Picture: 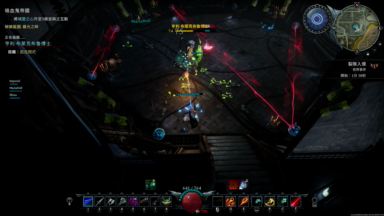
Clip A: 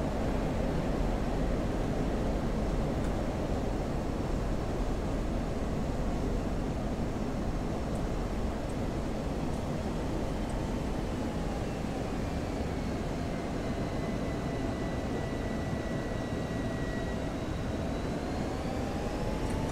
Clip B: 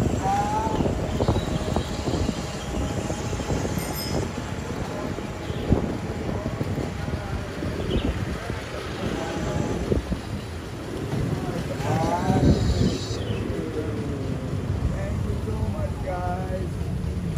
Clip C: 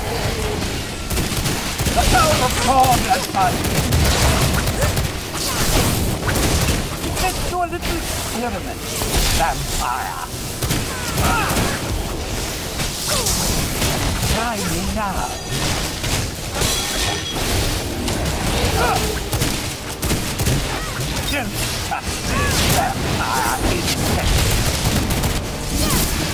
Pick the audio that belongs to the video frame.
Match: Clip C